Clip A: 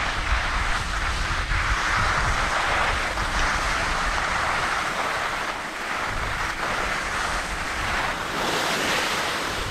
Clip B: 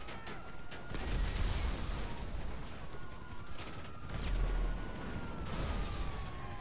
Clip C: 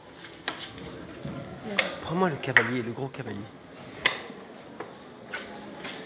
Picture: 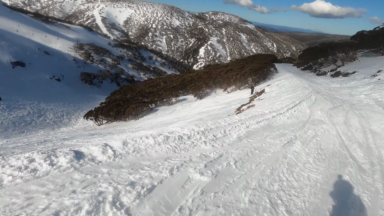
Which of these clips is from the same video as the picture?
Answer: A